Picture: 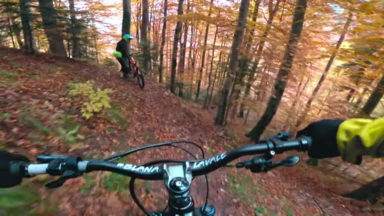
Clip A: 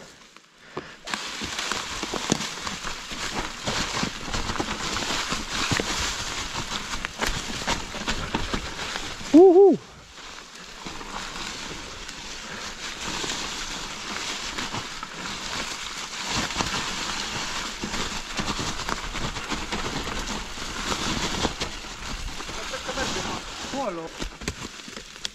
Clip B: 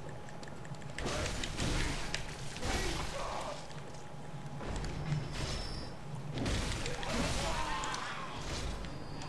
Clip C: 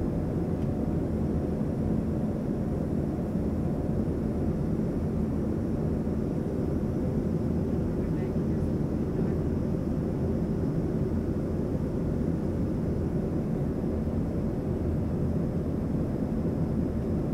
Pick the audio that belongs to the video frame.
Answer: A